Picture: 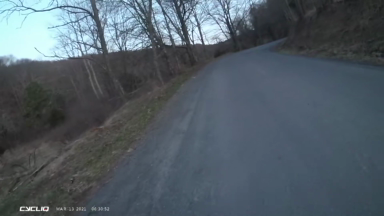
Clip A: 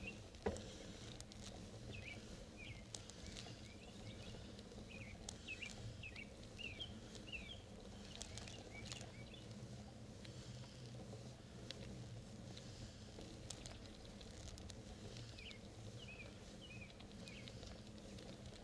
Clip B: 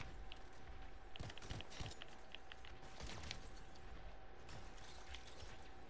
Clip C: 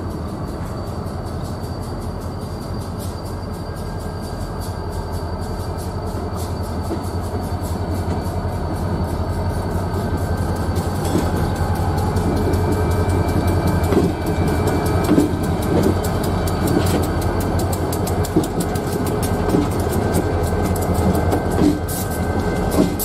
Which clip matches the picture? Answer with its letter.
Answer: A